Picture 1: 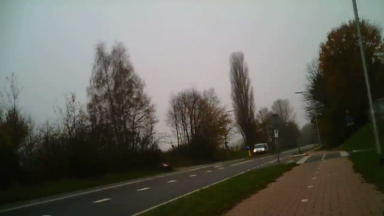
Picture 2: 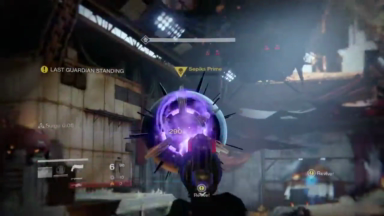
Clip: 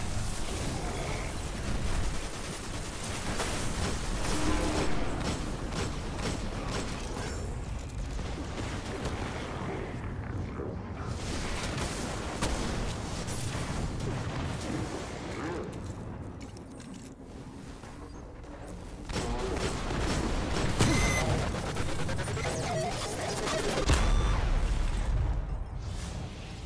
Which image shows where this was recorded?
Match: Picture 2